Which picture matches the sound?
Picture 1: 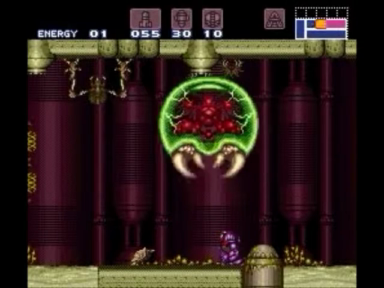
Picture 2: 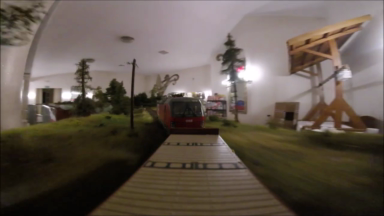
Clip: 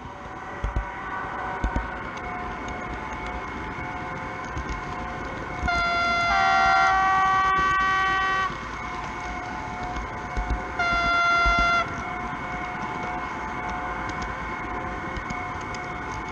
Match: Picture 2